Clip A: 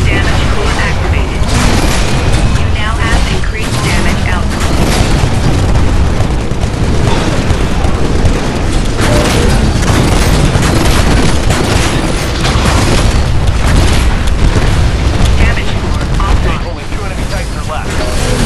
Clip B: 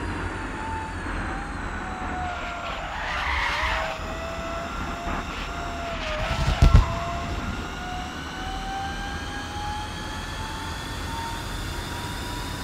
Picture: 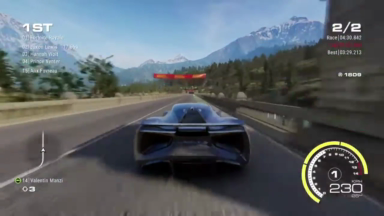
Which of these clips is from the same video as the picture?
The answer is B